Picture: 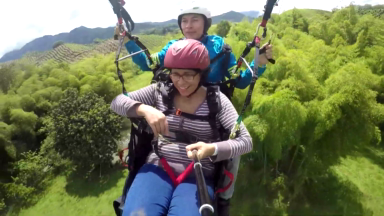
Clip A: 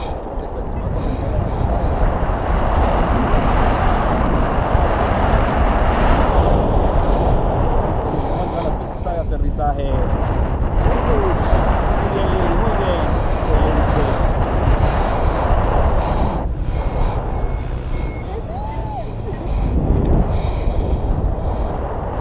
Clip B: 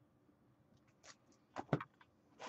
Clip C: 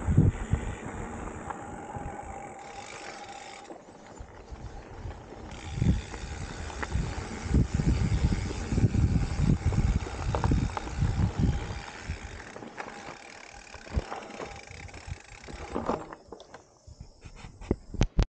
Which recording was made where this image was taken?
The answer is A